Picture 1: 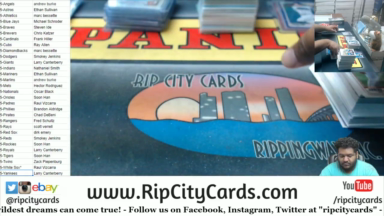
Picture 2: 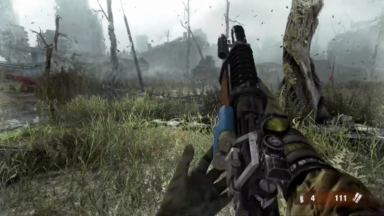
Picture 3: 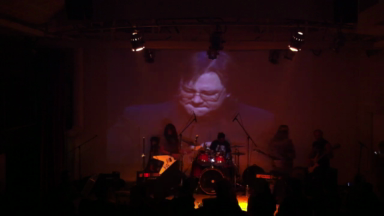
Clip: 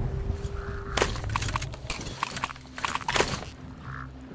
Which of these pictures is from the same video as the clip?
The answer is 2